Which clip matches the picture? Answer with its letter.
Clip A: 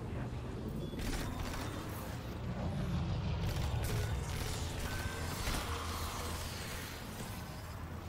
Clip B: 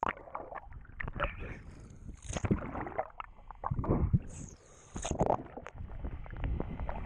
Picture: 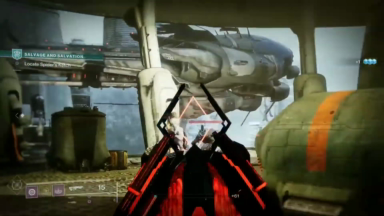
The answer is A